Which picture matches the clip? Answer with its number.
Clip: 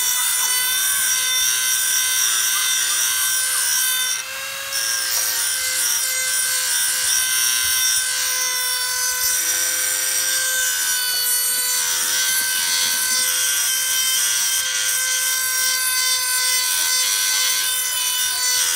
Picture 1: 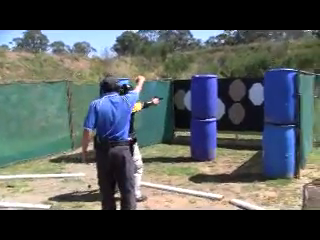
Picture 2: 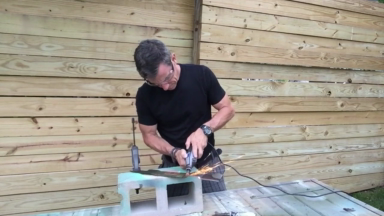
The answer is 2